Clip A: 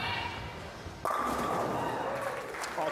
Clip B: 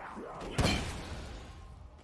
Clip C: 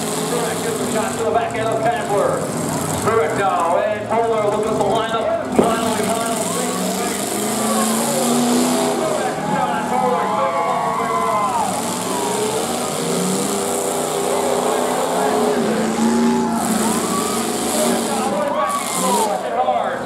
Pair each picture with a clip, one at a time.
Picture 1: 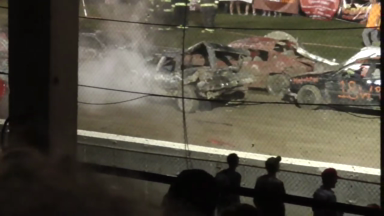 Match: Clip C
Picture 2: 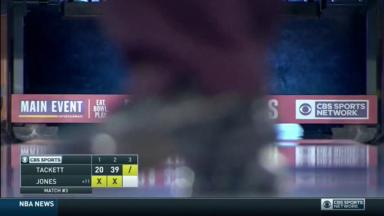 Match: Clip A